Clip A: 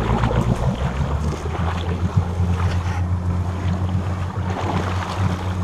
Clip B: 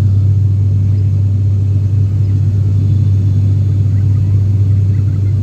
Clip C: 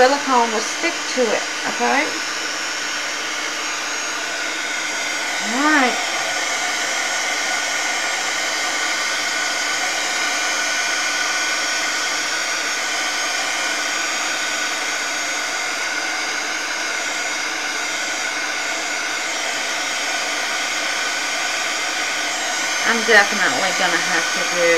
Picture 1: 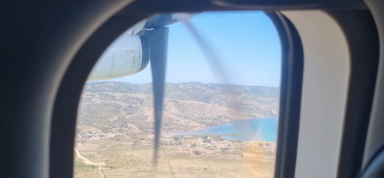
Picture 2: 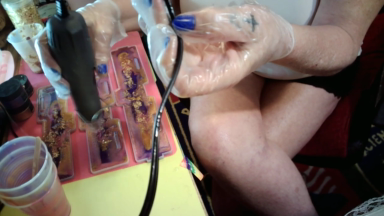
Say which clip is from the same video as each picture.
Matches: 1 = B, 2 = C